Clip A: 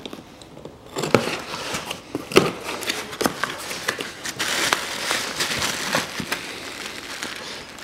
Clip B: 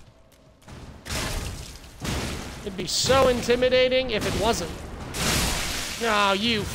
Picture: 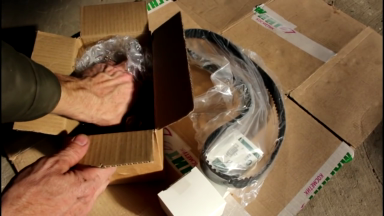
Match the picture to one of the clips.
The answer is A